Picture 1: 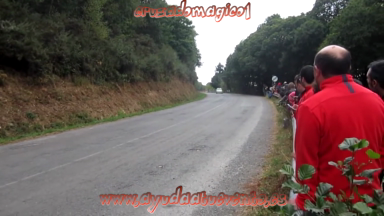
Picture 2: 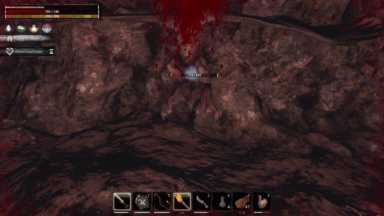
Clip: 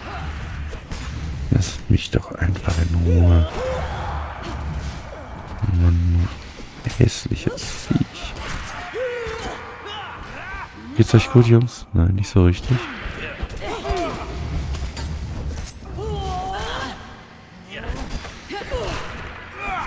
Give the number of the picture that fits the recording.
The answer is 2